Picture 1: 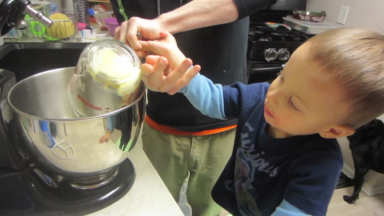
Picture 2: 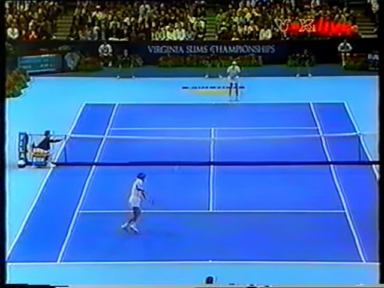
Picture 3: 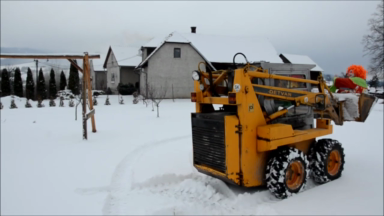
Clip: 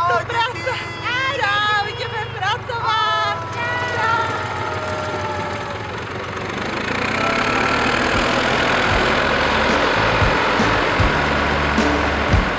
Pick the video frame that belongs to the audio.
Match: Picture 3